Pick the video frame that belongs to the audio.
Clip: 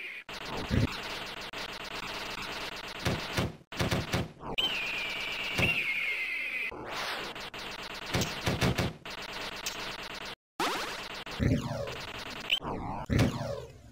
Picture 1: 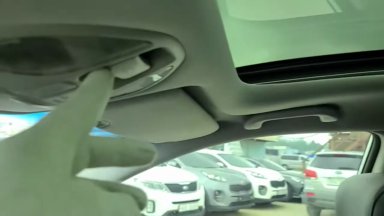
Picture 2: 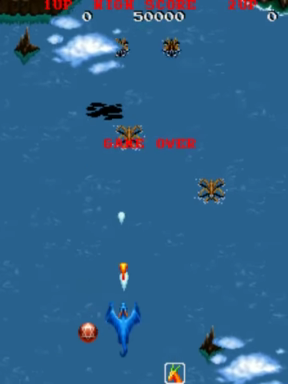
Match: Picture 2